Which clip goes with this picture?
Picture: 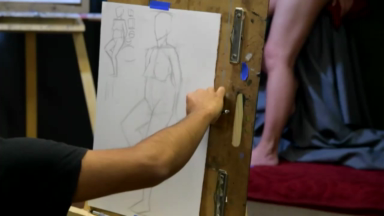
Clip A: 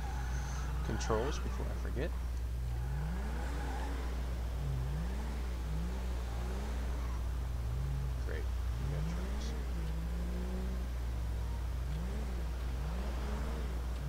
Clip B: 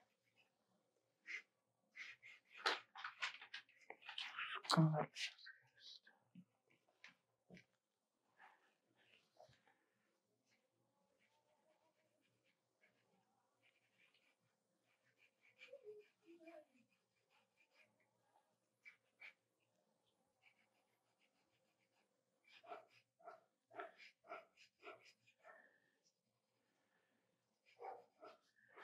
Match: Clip B